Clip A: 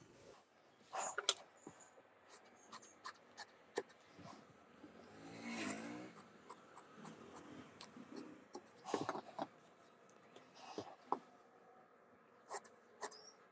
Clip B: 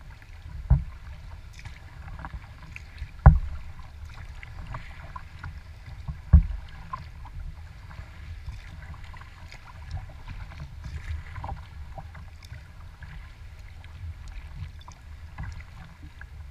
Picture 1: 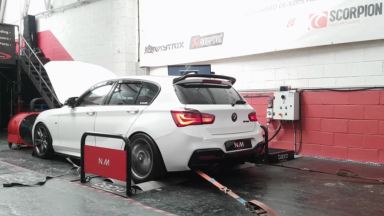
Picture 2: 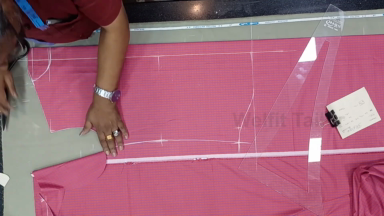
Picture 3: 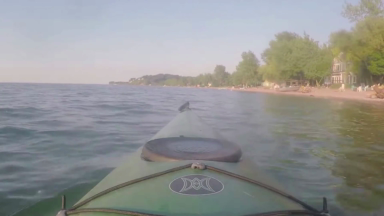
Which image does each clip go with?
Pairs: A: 2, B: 3